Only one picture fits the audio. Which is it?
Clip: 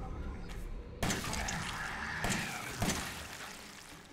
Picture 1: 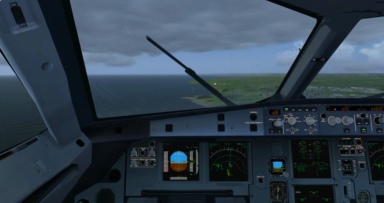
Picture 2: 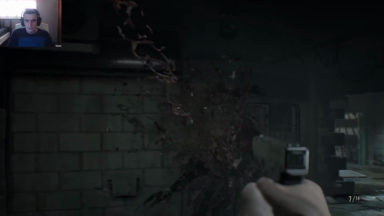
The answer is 2